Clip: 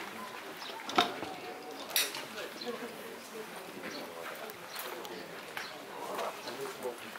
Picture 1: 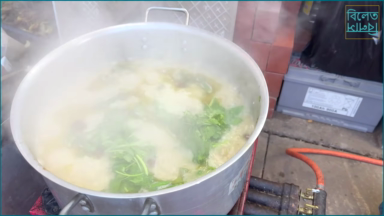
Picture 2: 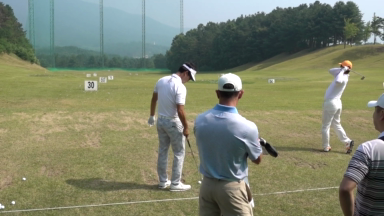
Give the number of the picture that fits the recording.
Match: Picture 2